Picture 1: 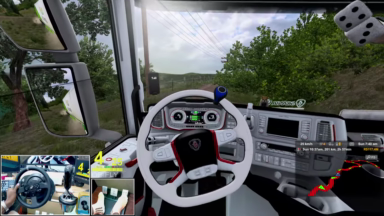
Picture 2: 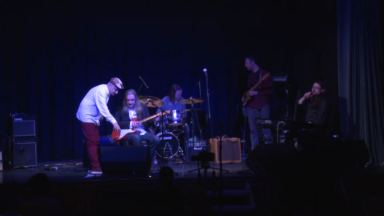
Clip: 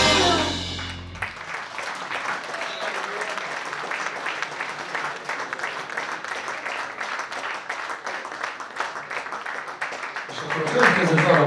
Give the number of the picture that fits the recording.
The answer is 2